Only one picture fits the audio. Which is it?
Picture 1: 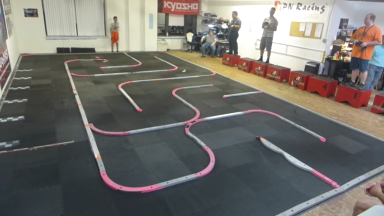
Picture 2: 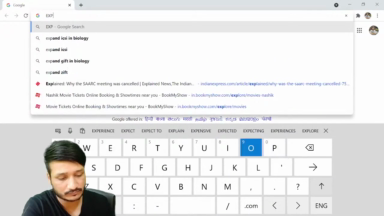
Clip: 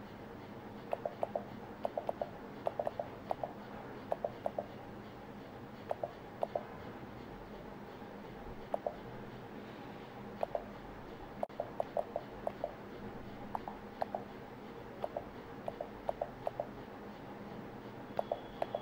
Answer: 2